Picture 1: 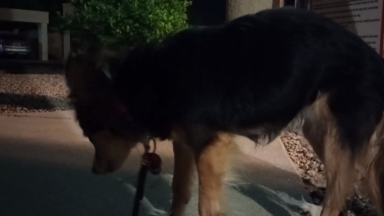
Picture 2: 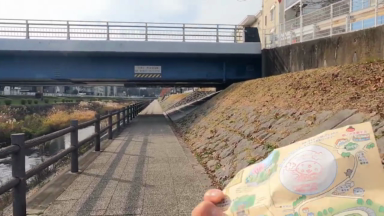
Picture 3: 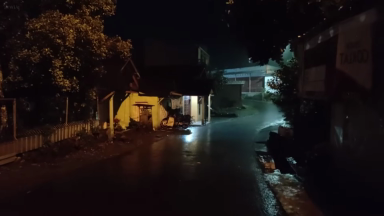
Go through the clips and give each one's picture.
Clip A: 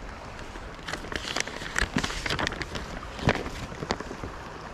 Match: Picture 2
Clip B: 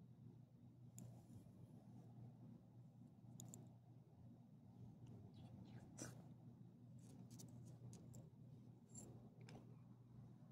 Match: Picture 1